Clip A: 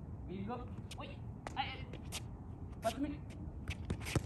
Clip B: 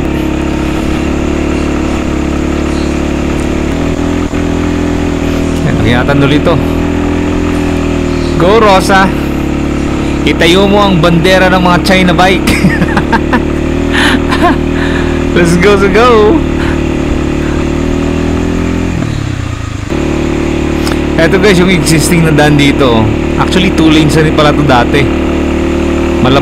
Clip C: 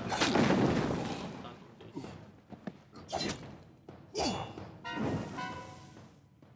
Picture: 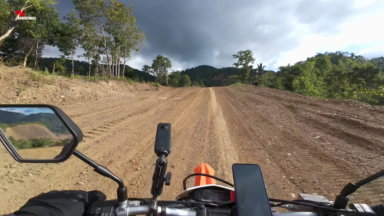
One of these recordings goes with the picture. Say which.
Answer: B